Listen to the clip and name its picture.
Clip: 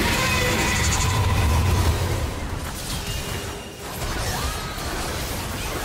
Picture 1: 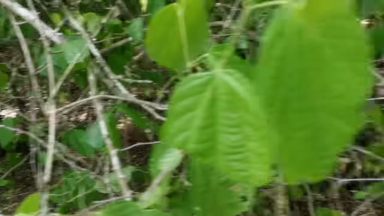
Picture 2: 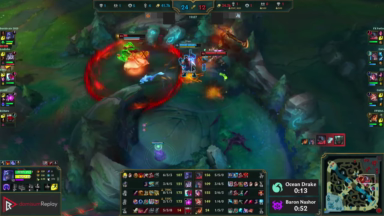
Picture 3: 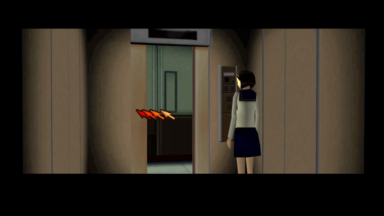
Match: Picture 2